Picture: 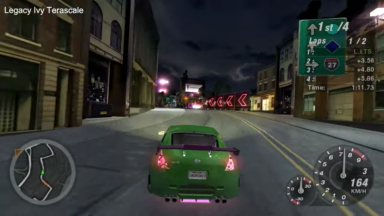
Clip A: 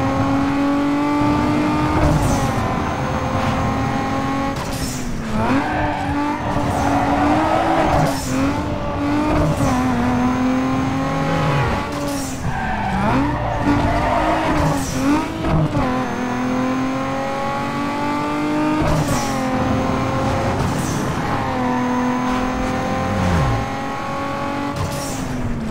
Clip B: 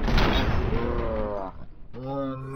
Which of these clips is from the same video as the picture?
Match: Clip A